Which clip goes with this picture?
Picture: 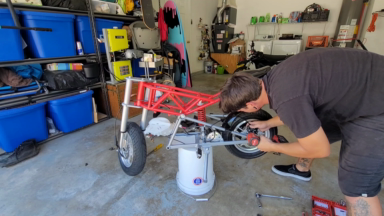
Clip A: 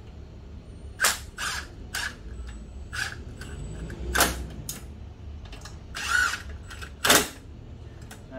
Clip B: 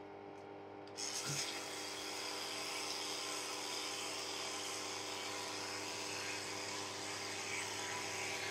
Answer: A